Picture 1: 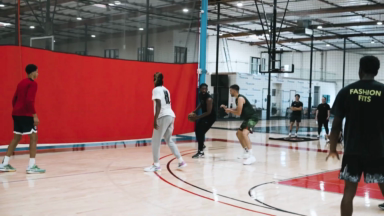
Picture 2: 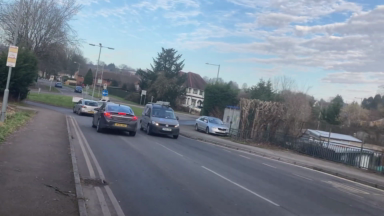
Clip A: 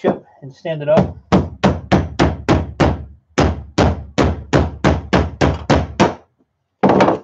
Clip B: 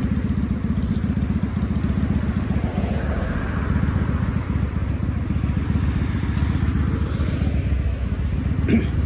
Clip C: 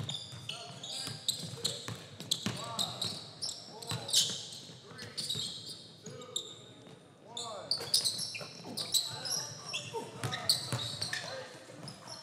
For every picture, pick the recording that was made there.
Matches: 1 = C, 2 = B